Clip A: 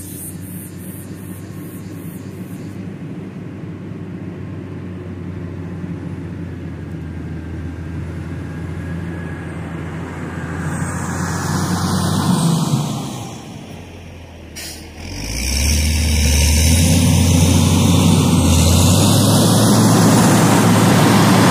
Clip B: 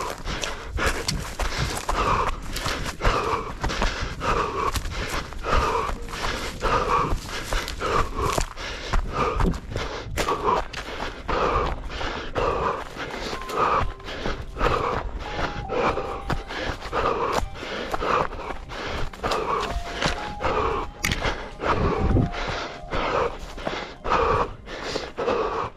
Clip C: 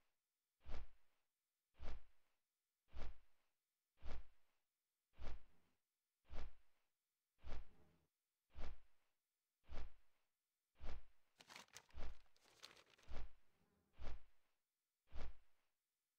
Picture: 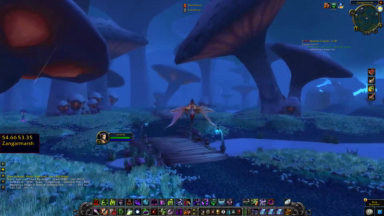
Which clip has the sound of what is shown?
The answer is C